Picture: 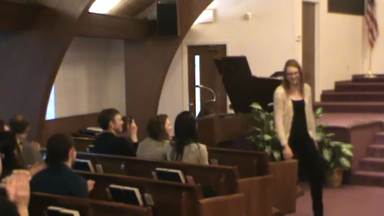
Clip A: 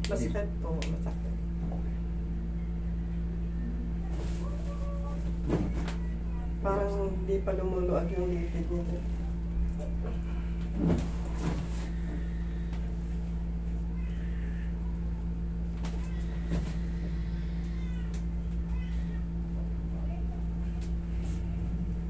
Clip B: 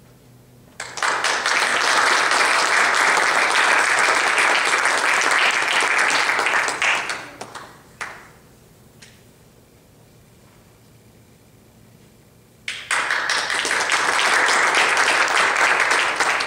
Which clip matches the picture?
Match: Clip B